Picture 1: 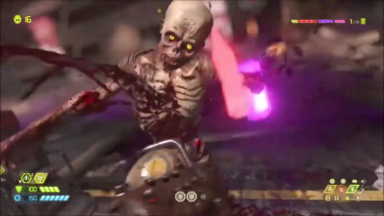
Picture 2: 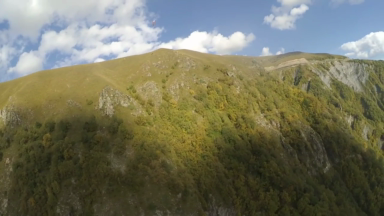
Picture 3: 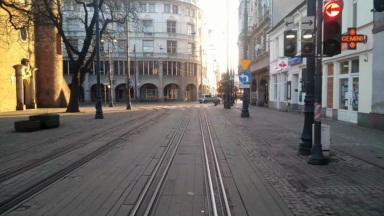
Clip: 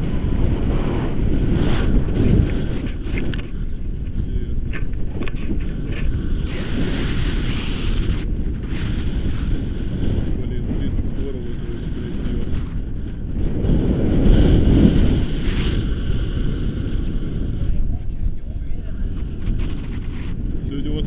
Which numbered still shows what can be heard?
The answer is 2